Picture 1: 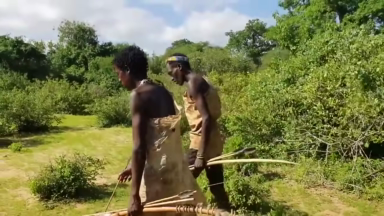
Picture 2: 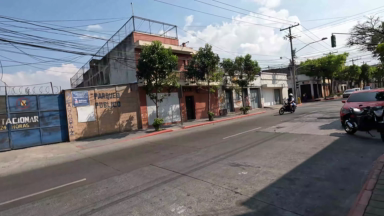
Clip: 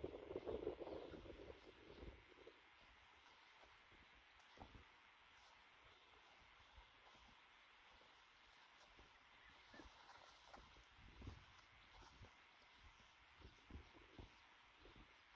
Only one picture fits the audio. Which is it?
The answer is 1